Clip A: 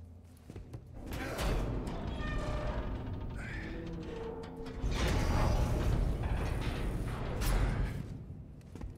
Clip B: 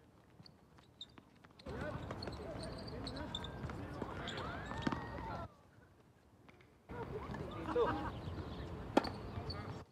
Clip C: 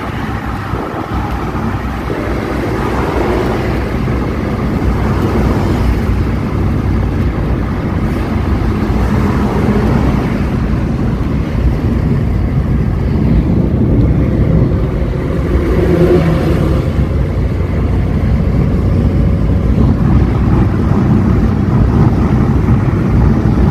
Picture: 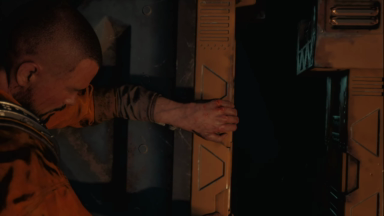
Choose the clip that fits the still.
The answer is A